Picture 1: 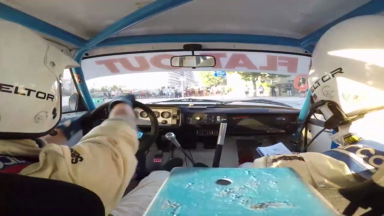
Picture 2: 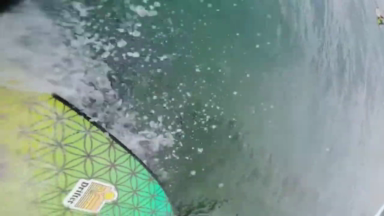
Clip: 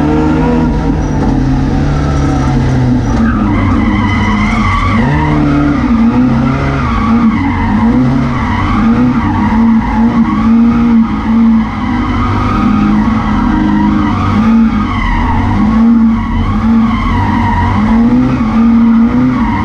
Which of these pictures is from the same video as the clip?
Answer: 1